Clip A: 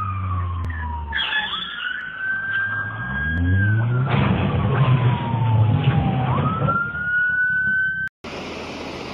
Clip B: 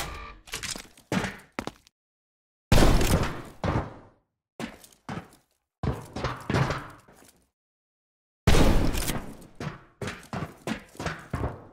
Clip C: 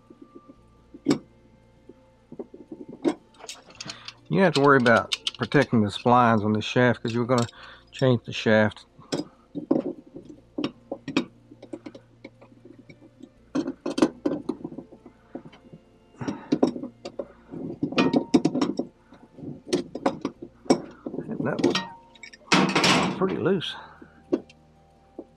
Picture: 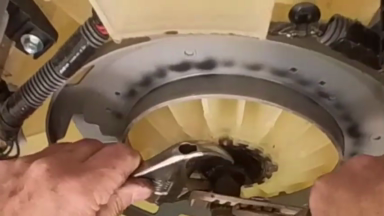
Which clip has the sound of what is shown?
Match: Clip C